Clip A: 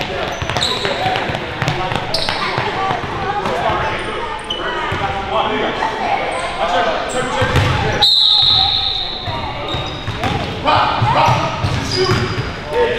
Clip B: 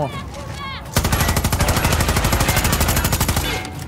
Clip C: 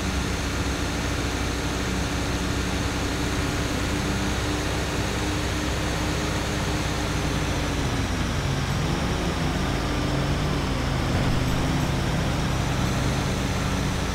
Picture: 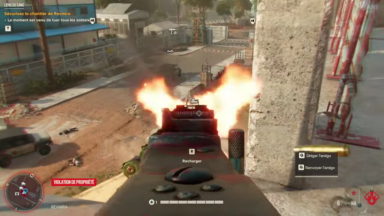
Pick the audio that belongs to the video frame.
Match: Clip B